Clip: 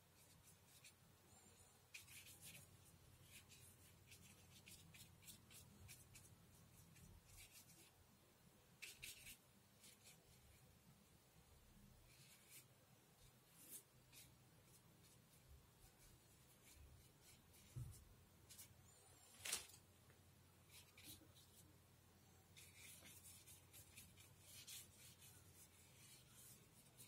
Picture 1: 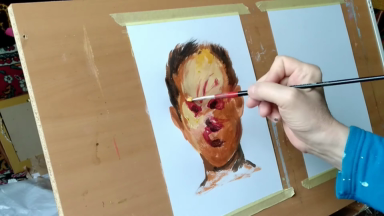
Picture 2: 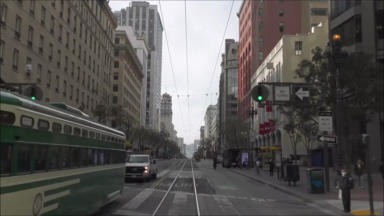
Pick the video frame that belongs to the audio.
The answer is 1